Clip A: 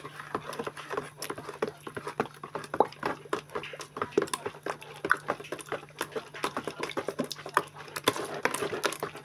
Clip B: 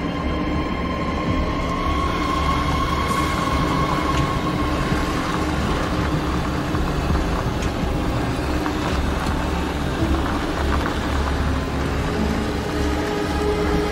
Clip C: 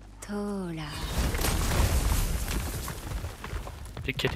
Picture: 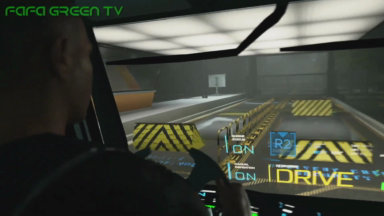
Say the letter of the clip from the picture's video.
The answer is B